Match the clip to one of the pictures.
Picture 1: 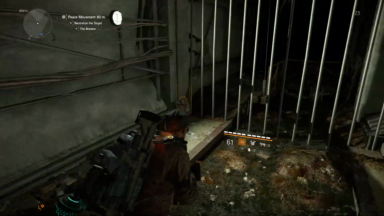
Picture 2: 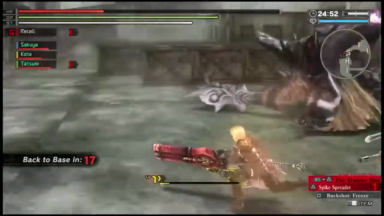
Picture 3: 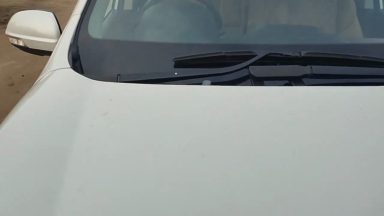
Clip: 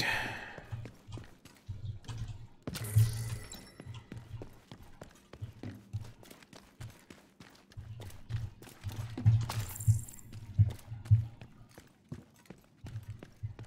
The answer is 1